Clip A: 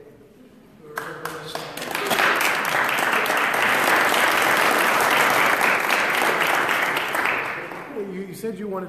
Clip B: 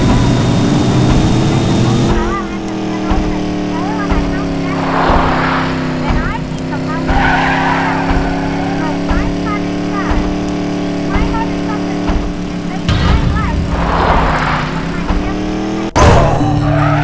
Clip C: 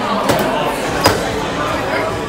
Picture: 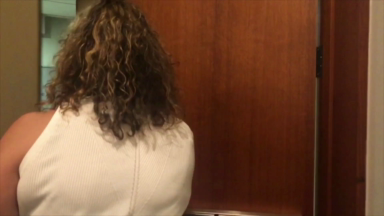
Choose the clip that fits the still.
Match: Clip C